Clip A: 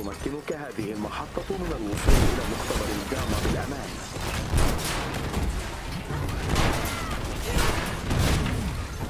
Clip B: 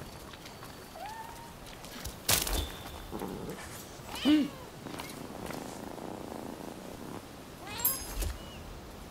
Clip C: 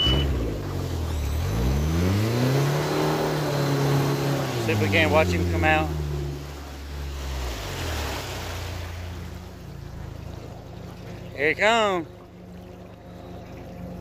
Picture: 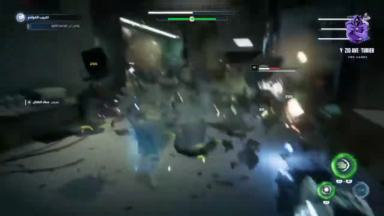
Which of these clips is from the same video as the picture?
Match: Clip A